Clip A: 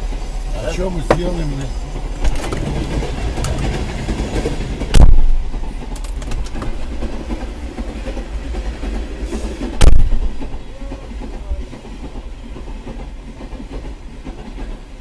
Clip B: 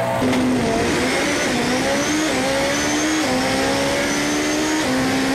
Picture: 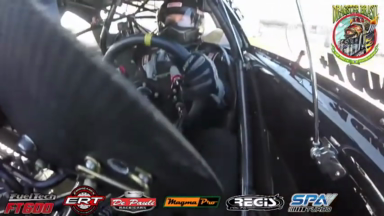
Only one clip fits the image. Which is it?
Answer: B